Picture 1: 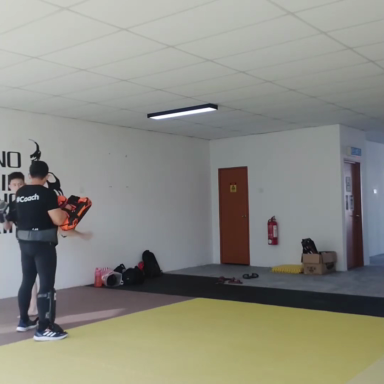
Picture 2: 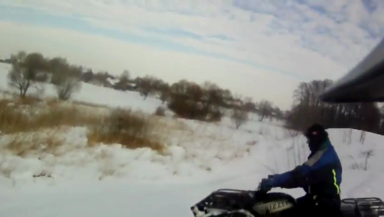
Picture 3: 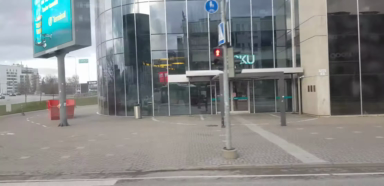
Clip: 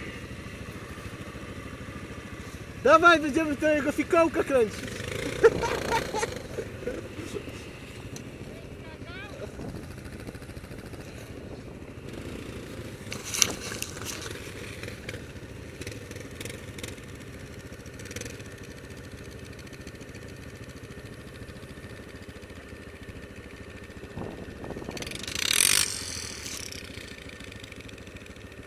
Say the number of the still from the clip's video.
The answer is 2